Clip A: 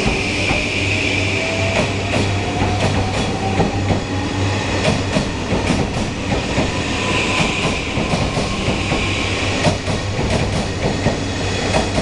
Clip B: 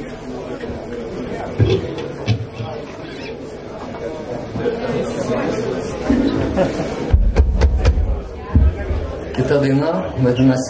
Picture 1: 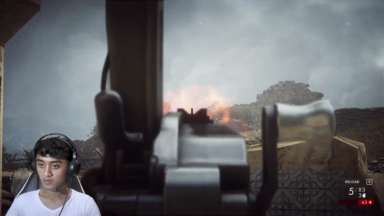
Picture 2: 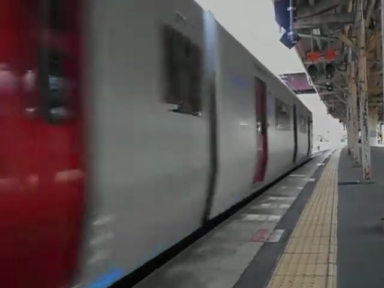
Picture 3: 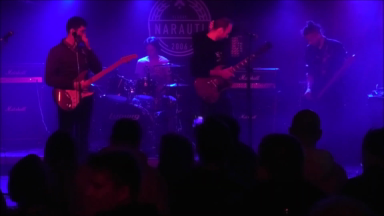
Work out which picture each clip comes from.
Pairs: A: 2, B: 3